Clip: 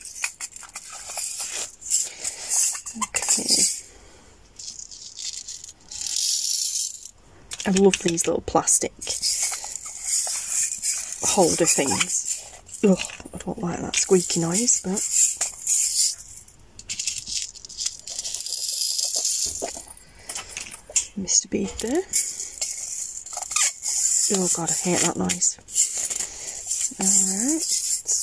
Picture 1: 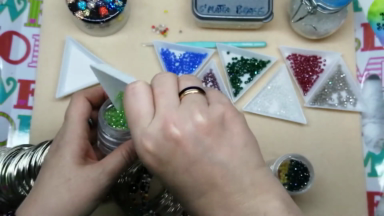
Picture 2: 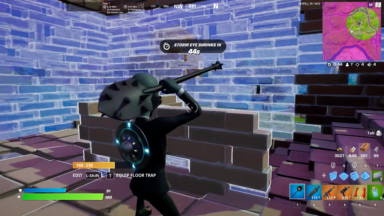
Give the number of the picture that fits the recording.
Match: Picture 1